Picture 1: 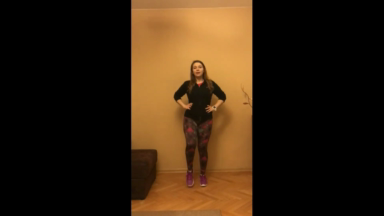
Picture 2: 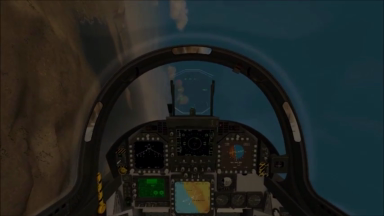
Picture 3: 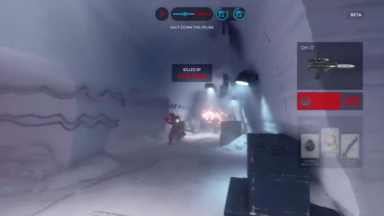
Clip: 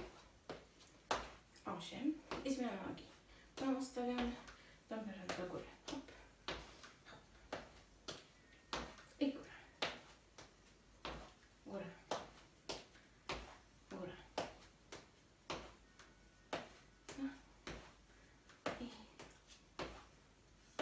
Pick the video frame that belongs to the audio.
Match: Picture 1